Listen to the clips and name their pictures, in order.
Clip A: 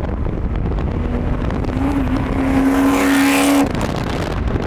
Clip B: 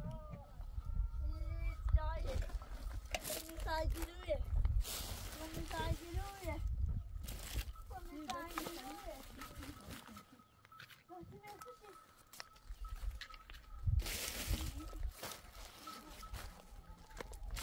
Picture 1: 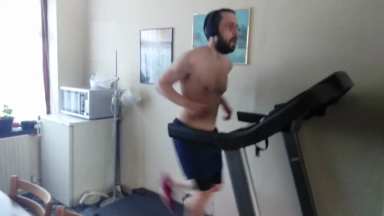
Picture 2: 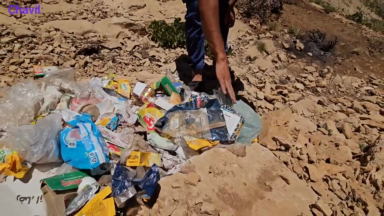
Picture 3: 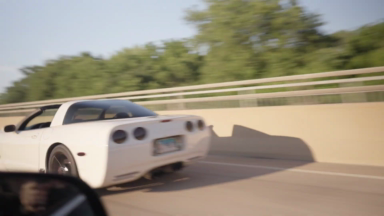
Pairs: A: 3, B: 2